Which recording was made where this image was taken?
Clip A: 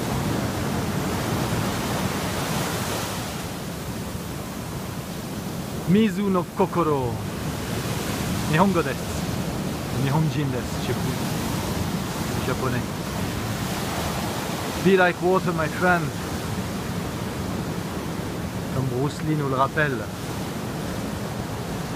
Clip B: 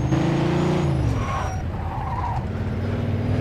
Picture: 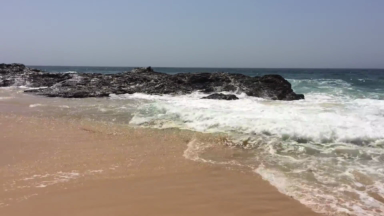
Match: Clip A